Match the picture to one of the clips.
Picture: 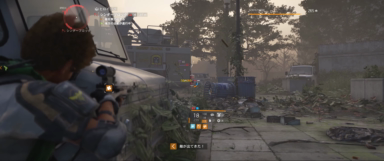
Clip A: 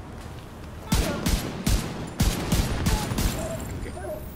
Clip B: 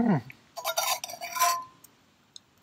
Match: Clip A